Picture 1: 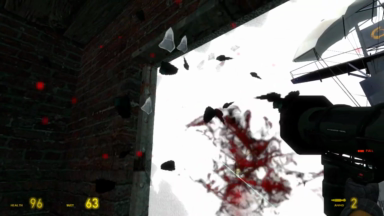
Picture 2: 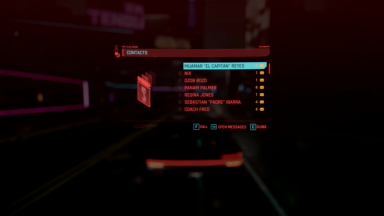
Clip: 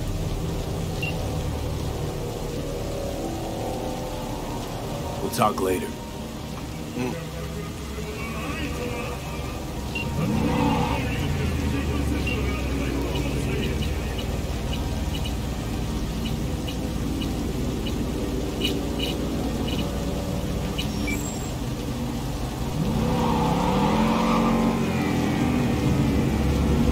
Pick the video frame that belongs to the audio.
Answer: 2